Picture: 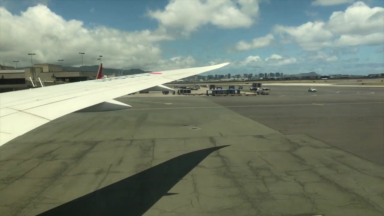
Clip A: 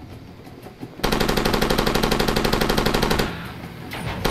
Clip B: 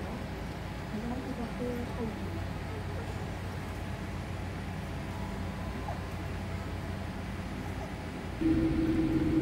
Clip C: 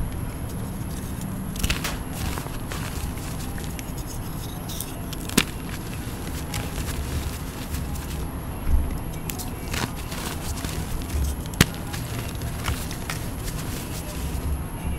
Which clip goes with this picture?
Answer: B